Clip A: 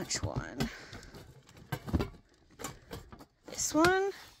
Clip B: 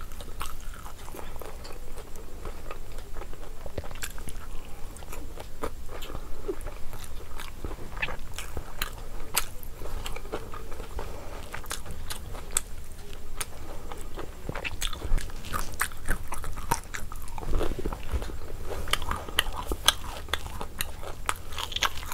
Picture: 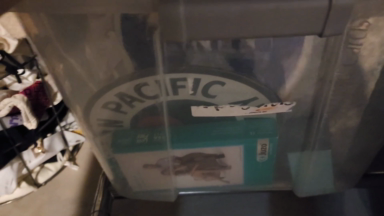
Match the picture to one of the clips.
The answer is A